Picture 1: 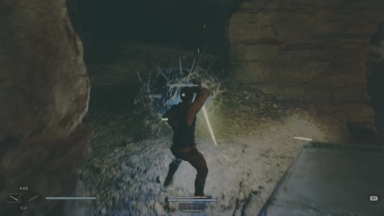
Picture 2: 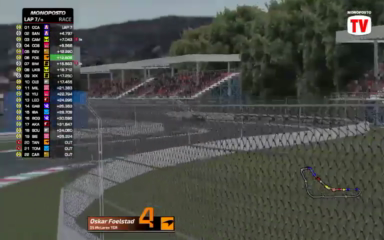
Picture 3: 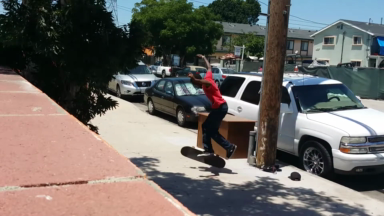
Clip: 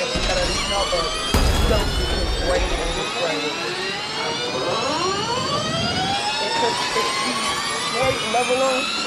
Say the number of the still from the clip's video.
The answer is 2